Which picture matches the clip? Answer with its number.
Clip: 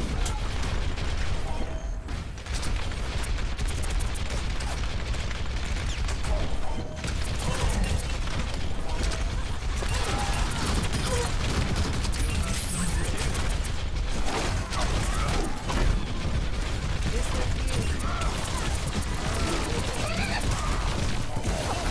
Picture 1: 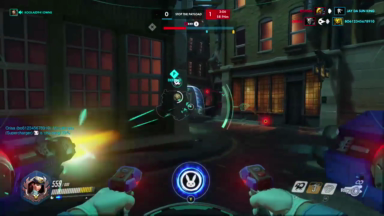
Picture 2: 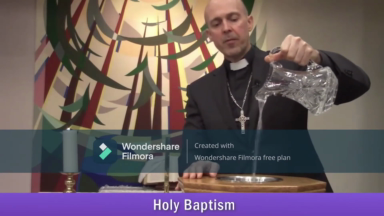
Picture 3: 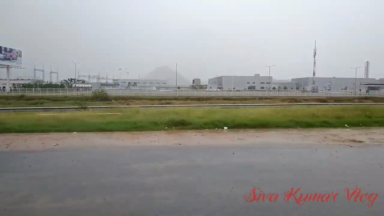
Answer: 1